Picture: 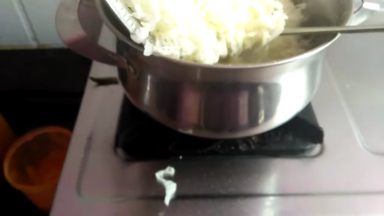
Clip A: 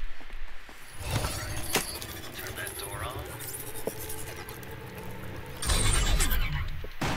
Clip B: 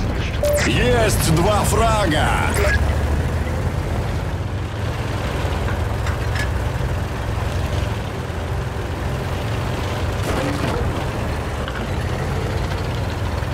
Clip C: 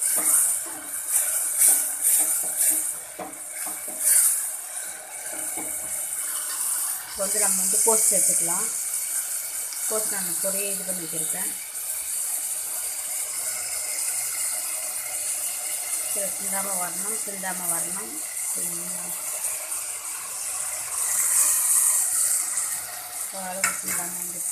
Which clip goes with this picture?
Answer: C